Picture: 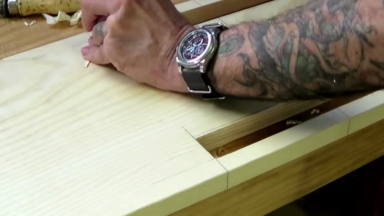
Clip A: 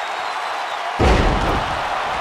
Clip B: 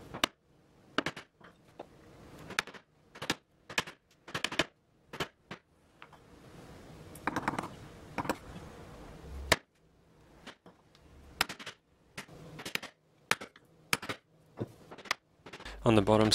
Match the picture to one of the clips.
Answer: B